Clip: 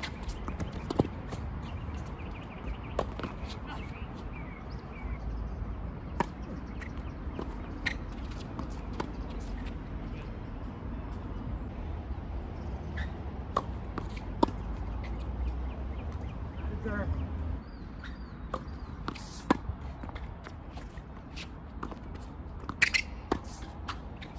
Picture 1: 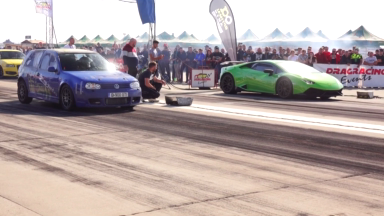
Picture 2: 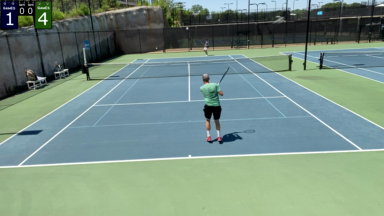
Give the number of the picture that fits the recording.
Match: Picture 2